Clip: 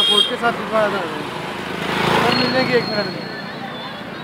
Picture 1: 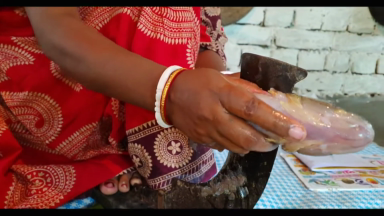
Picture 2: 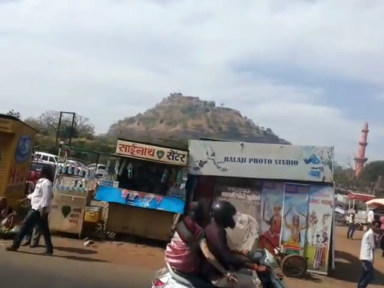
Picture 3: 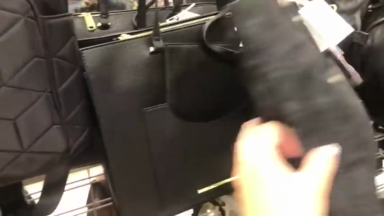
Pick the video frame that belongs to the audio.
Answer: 2